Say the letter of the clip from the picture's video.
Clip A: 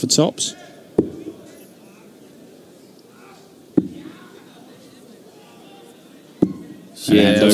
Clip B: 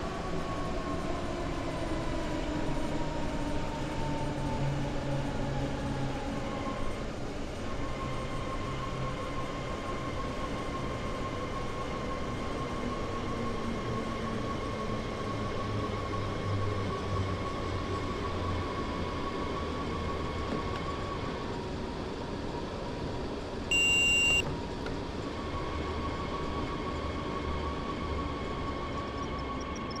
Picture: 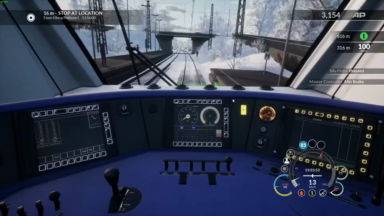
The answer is B